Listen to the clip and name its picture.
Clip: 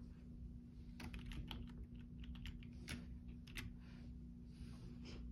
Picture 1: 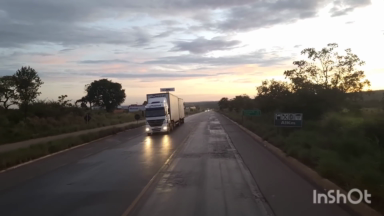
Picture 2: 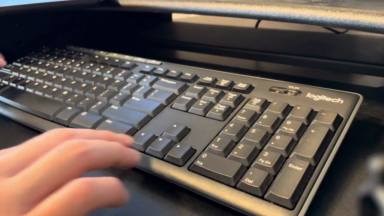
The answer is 2